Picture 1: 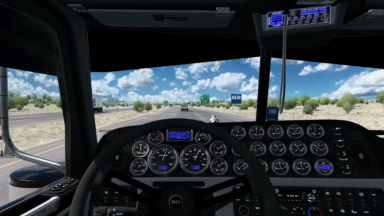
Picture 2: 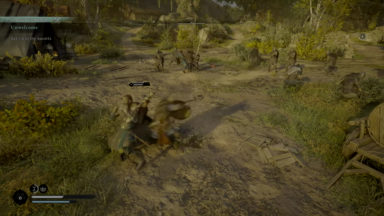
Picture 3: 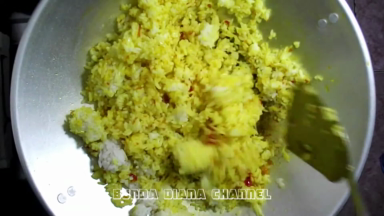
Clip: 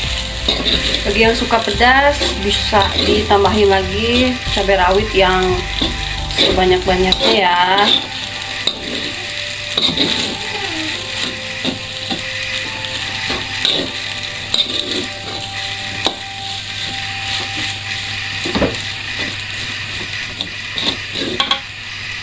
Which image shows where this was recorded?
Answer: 3